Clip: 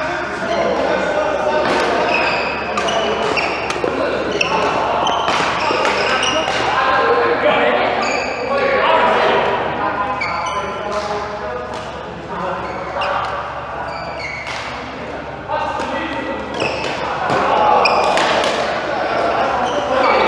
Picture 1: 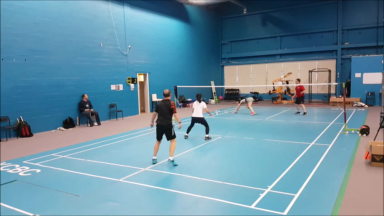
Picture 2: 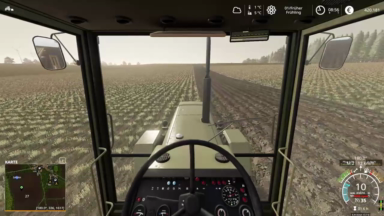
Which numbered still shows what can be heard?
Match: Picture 1